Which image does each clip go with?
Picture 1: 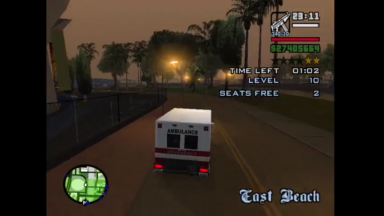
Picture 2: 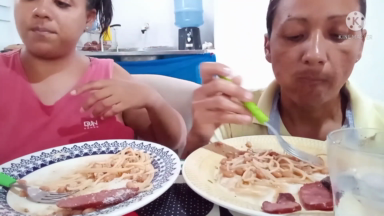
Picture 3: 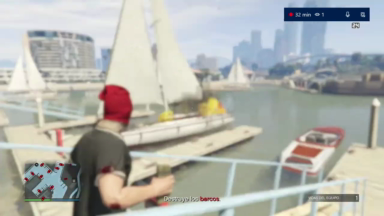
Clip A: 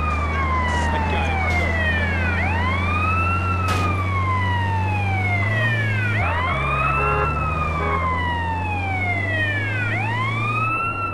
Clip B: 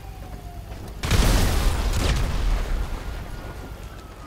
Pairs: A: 1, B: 3